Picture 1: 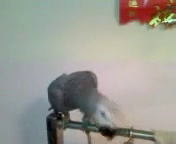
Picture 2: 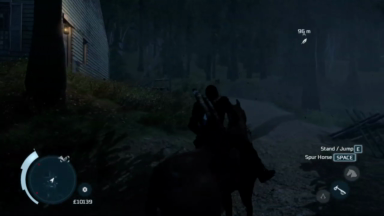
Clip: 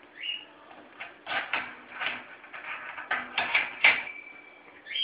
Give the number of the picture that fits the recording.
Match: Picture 1